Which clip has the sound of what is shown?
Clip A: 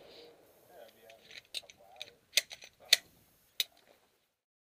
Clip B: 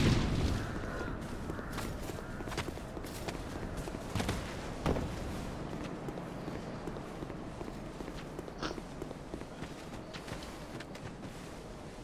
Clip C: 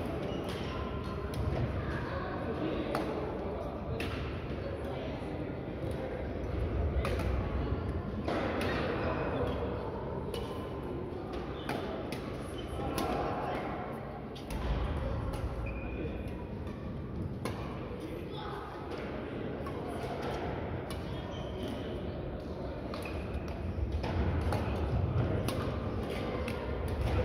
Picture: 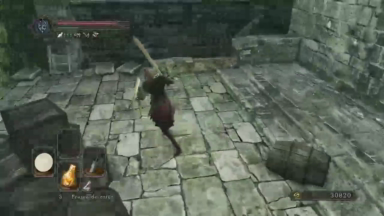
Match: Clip B